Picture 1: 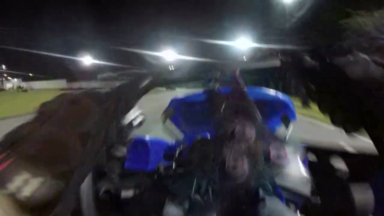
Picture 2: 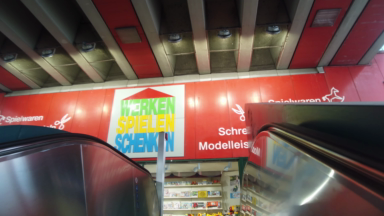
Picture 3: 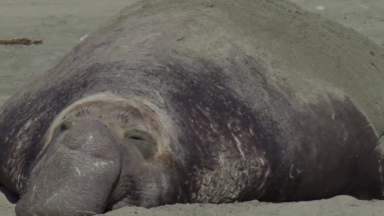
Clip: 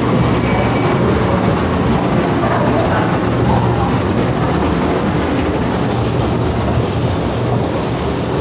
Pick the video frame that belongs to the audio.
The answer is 2